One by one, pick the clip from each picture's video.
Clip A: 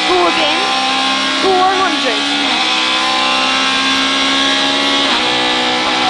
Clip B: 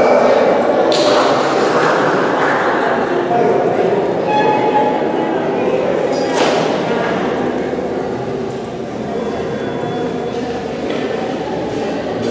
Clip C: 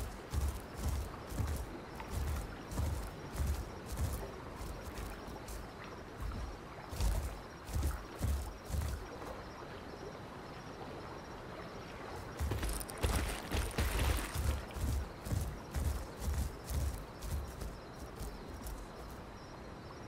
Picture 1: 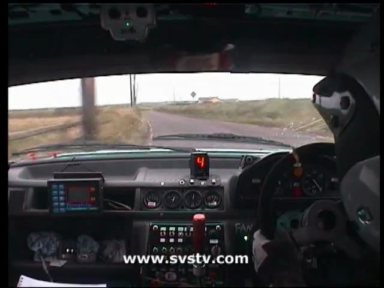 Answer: A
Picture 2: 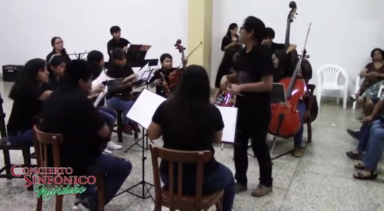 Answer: B